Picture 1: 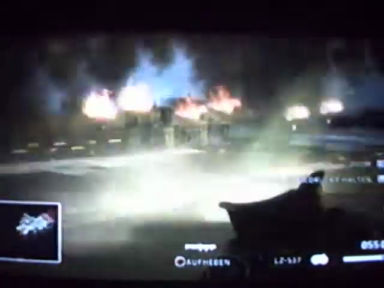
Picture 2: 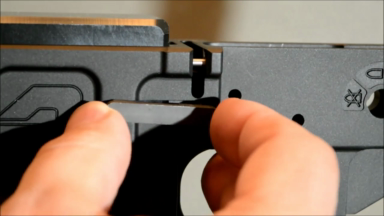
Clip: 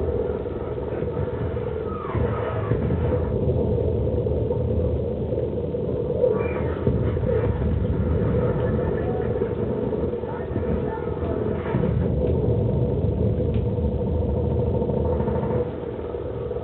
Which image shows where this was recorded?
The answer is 1